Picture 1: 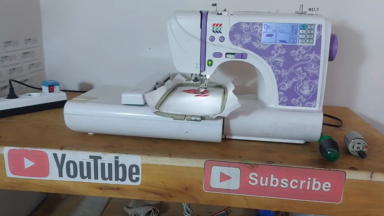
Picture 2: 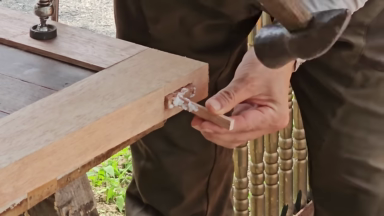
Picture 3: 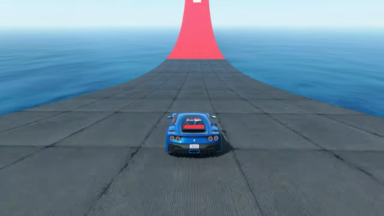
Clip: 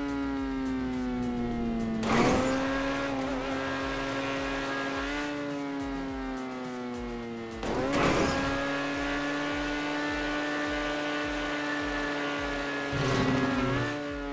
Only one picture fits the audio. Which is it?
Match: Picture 3